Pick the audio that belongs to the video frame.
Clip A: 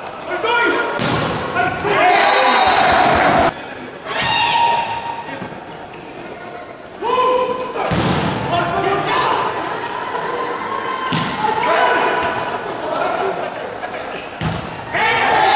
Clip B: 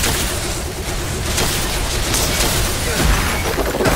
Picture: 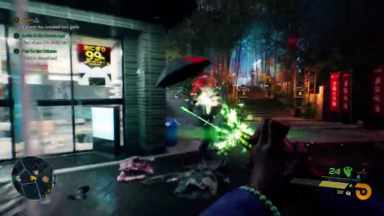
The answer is B